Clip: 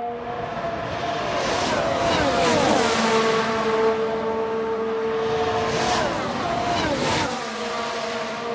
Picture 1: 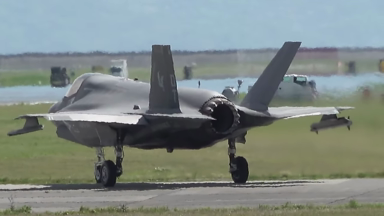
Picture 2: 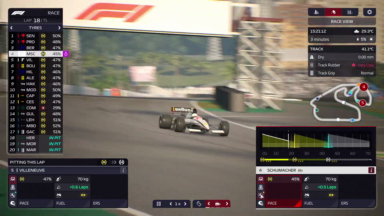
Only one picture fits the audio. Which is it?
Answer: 2